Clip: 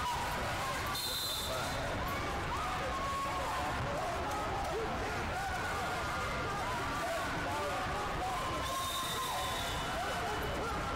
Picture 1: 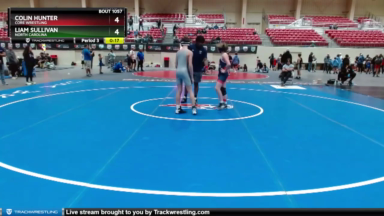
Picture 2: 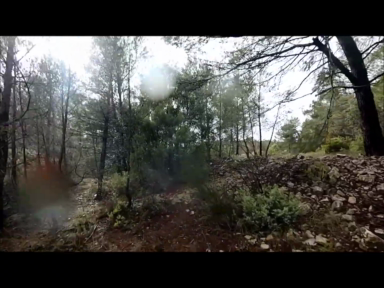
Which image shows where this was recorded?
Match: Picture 1